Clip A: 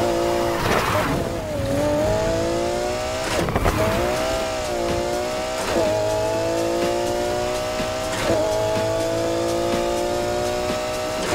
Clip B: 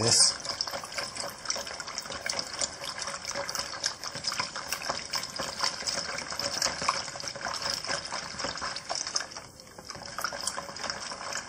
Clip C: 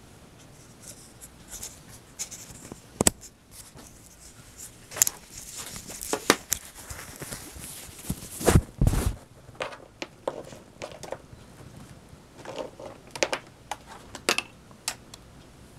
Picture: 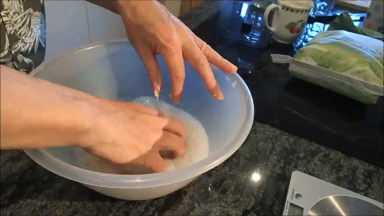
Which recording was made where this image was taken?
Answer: B